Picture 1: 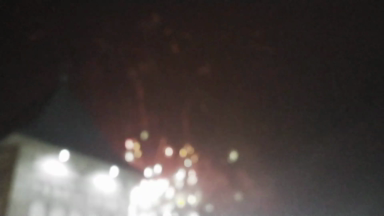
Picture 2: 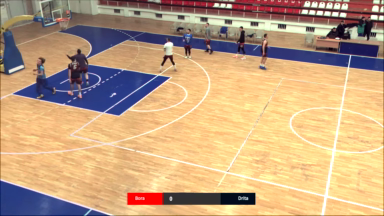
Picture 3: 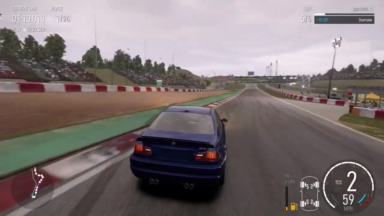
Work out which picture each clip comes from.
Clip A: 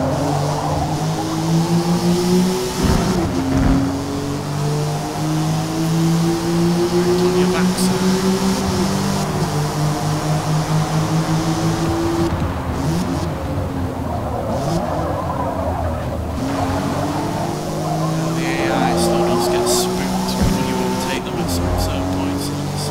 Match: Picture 3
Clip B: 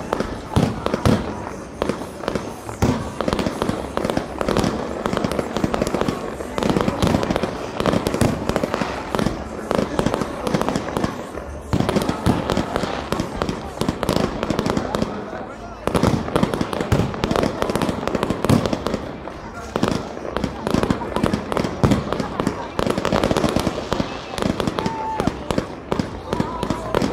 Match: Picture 1